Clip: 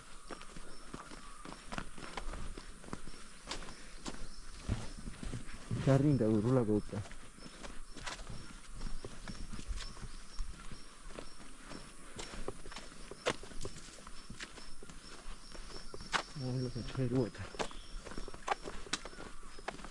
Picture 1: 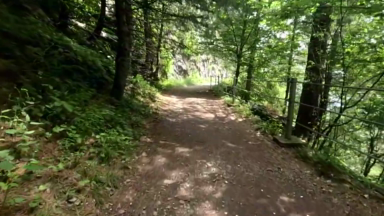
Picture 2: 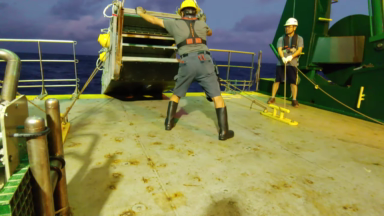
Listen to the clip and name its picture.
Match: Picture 1